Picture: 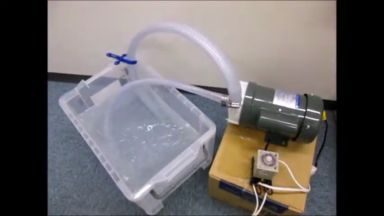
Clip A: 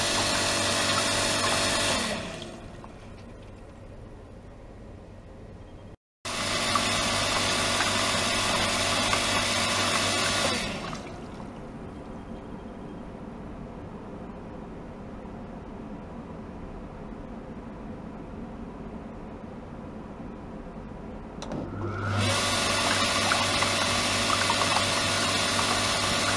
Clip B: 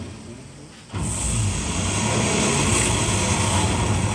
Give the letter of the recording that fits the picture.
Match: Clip A